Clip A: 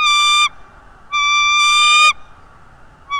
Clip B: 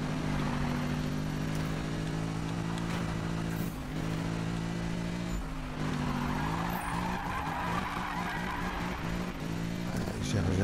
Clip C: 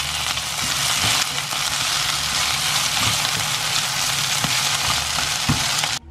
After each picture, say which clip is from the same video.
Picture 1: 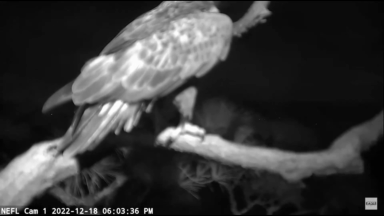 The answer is A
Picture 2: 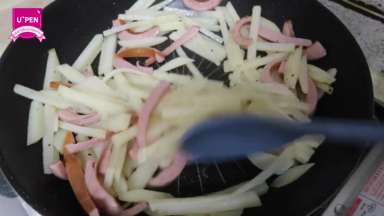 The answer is C